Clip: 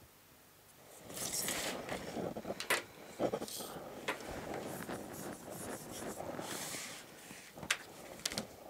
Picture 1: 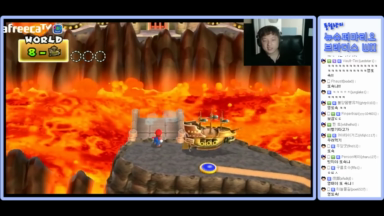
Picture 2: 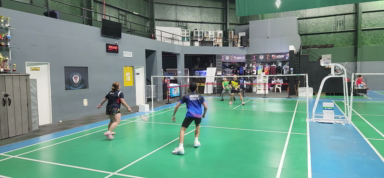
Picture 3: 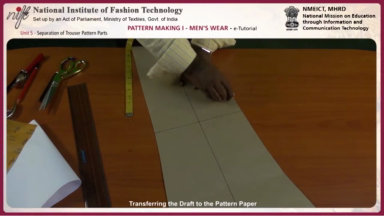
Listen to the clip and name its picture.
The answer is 3